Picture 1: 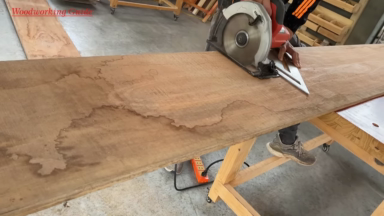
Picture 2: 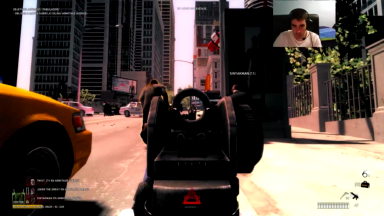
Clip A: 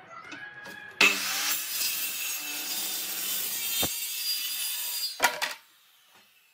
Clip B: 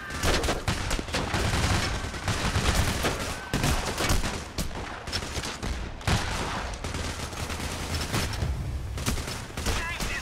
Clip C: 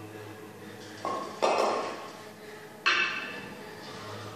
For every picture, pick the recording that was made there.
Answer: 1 A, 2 B